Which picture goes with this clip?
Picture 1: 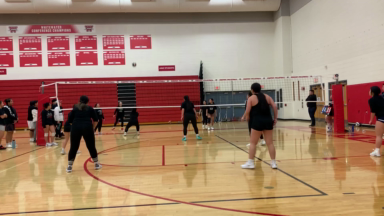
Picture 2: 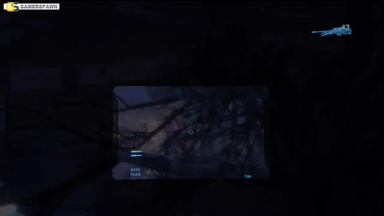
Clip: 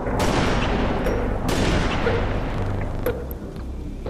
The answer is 2